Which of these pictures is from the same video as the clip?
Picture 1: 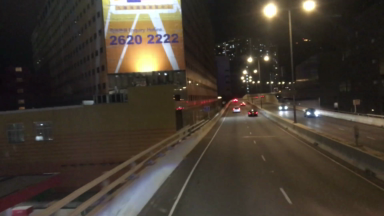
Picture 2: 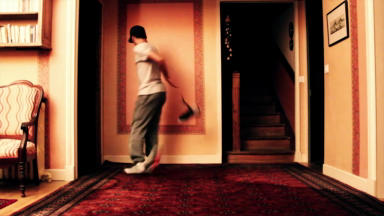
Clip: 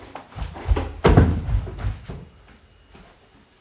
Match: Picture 2